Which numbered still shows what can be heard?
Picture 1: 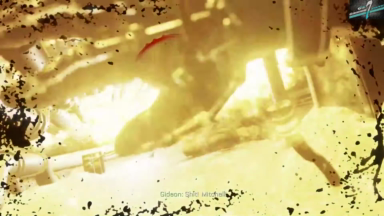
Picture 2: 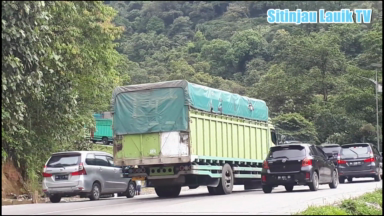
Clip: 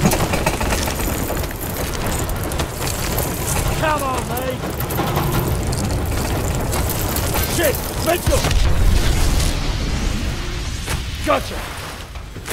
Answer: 1